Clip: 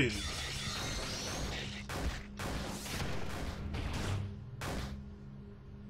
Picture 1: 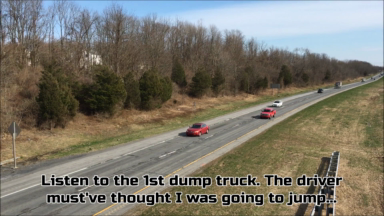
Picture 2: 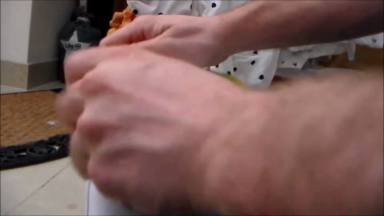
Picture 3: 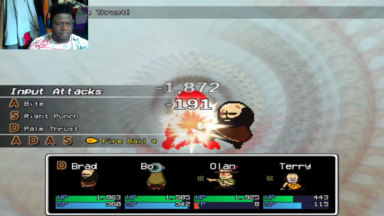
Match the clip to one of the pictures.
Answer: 3